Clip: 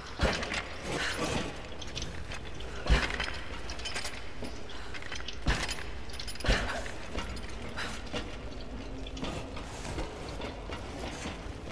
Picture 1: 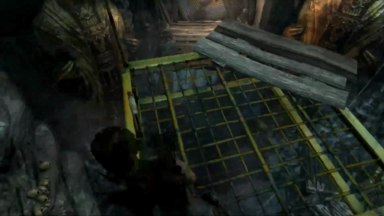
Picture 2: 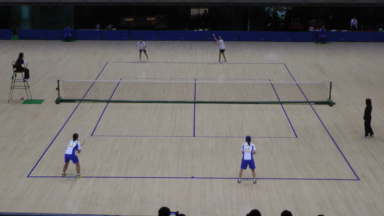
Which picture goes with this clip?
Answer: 1